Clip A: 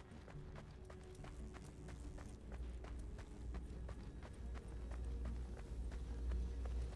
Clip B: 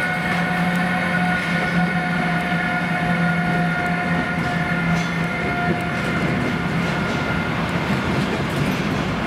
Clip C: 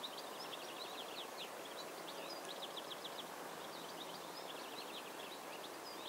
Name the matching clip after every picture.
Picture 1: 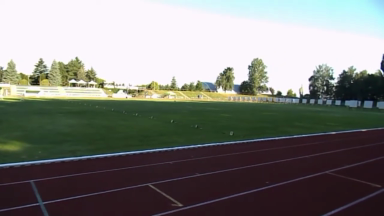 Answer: C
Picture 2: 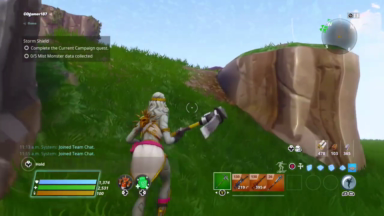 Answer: A